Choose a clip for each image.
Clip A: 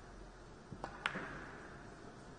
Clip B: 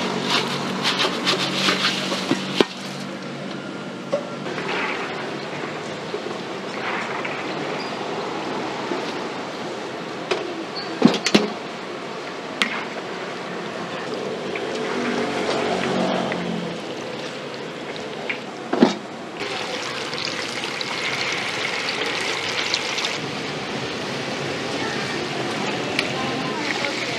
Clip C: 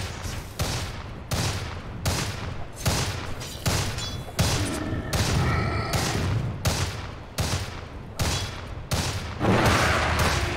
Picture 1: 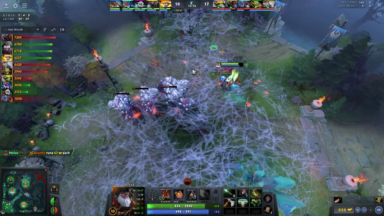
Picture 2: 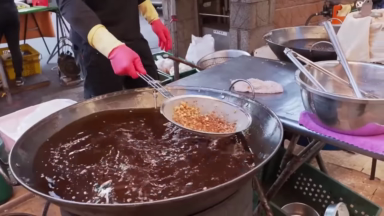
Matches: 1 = C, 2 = B